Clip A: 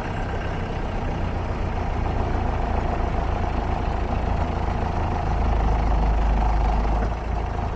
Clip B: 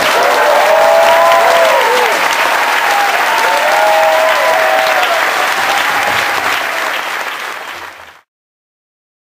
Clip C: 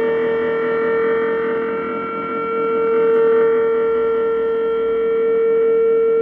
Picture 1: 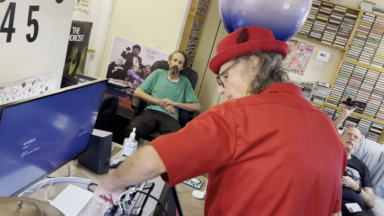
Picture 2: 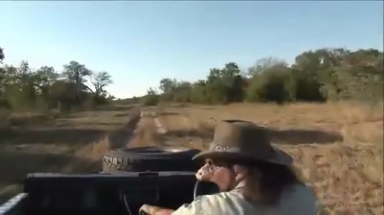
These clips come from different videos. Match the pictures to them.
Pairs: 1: C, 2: A